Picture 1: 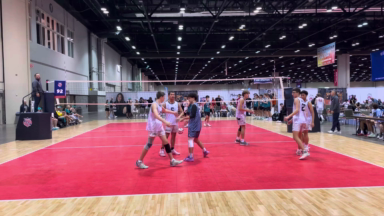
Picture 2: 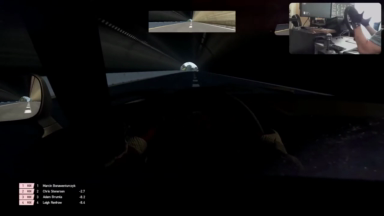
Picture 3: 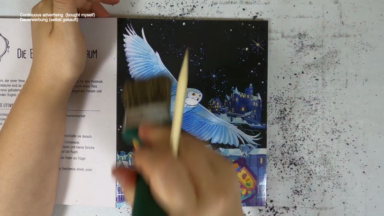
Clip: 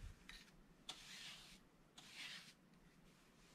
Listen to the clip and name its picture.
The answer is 3